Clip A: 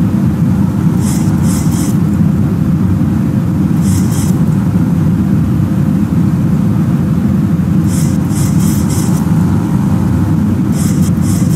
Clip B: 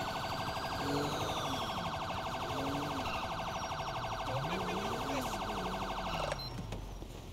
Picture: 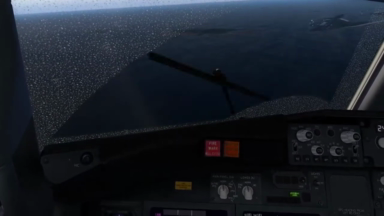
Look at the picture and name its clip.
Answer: A